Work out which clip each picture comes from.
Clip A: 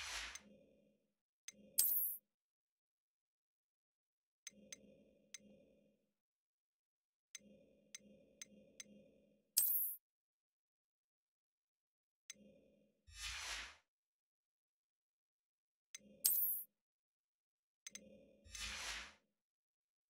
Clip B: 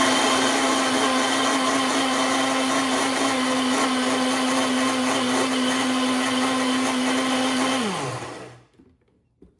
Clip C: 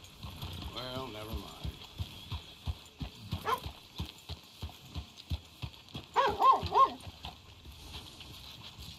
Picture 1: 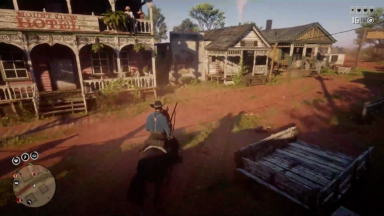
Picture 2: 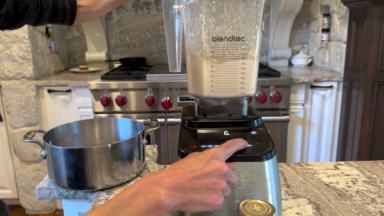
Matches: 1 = C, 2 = B